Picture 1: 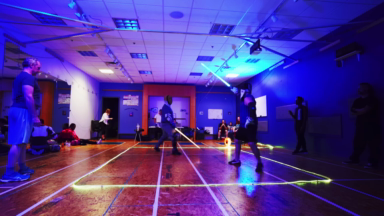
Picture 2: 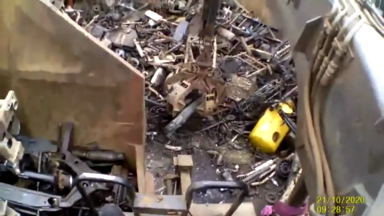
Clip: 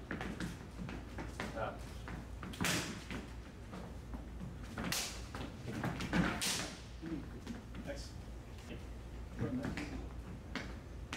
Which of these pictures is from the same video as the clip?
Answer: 1